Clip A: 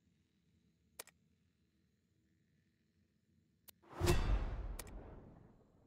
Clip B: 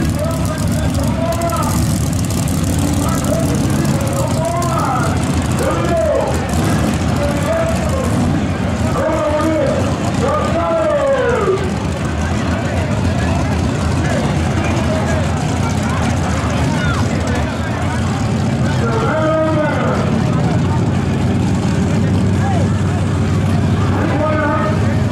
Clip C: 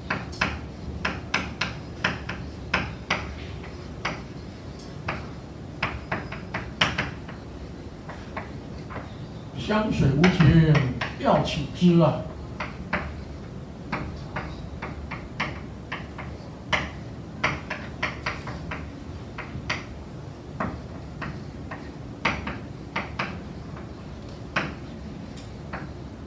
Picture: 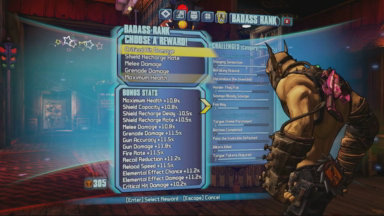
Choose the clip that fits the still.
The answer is A